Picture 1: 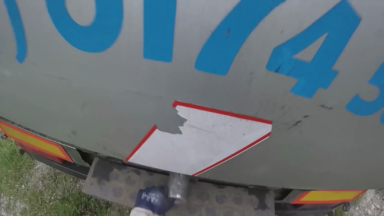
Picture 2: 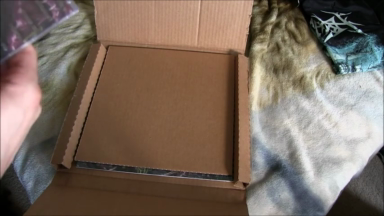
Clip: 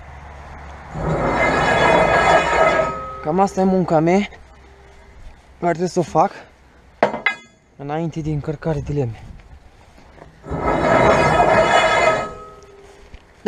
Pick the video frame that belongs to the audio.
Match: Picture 1